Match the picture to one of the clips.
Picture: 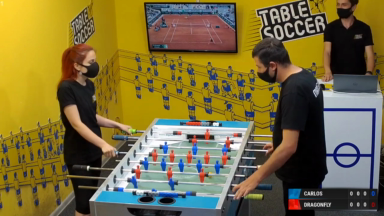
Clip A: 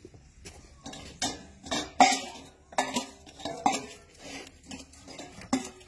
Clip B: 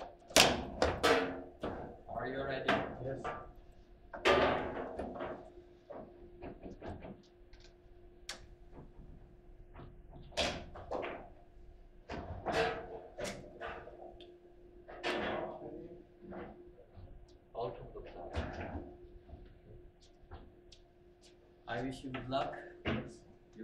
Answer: B